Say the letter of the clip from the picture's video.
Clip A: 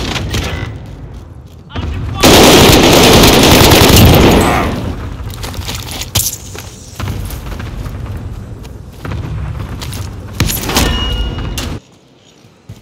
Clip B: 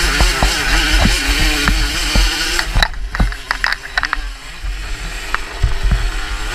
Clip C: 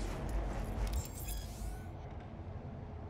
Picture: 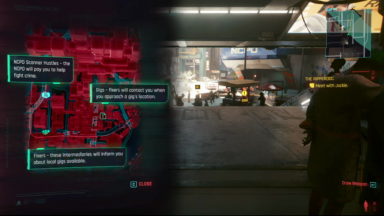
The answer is C